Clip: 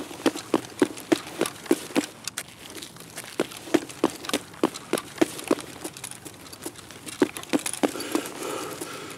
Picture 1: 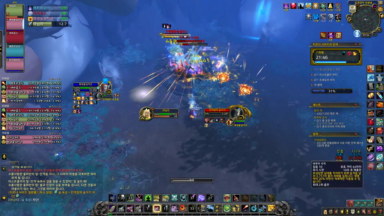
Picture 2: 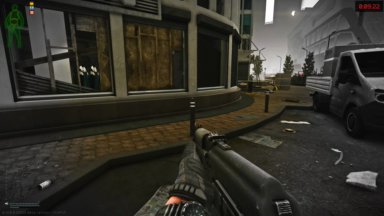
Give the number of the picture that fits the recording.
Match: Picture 2